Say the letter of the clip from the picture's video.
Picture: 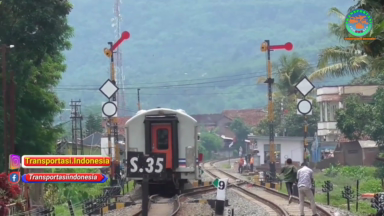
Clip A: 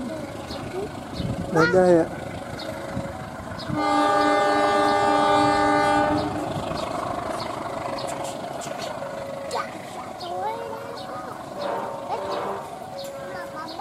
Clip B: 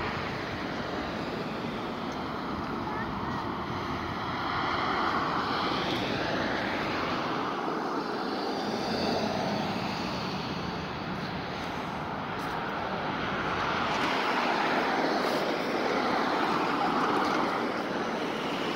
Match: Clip A